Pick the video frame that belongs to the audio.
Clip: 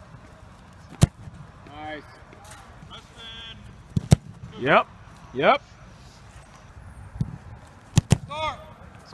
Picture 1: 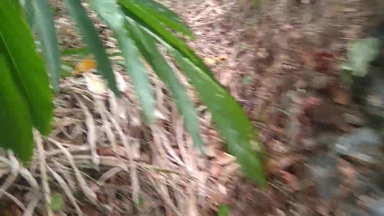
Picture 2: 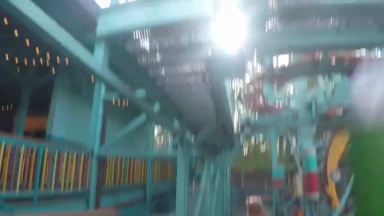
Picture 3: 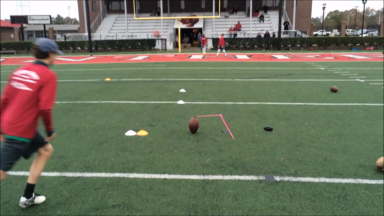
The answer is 3